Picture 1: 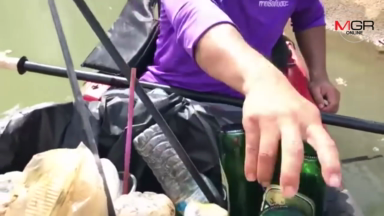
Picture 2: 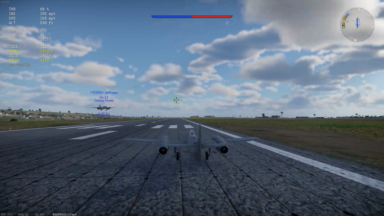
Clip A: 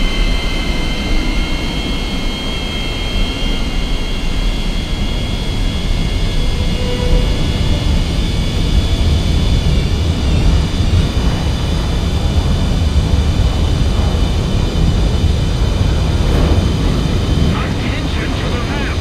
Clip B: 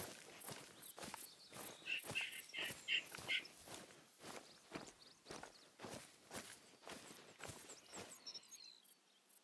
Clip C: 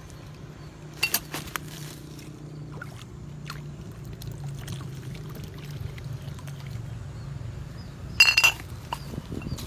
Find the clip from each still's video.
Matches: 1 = C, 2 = A